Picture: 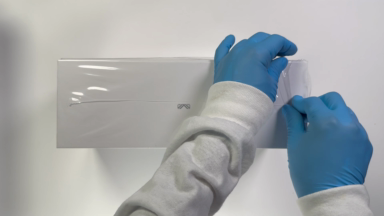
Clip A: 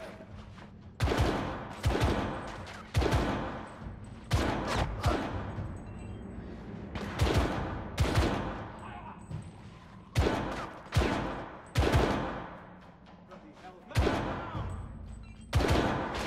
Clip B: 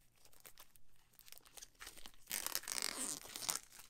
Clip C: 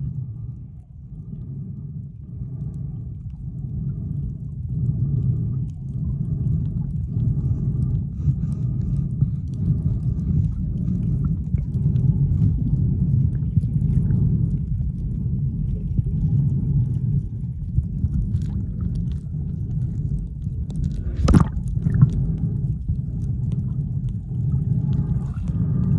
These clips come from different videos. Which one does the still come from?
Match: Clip B